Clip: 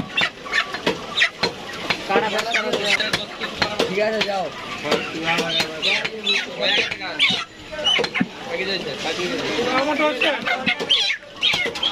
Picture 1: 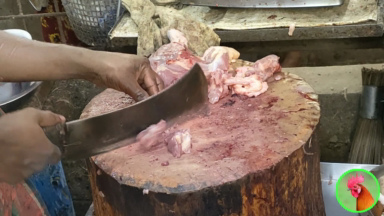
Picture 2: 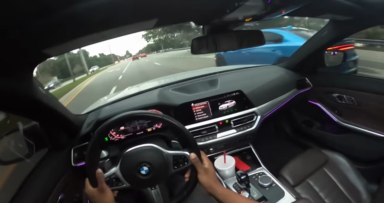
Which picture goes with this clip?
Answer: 1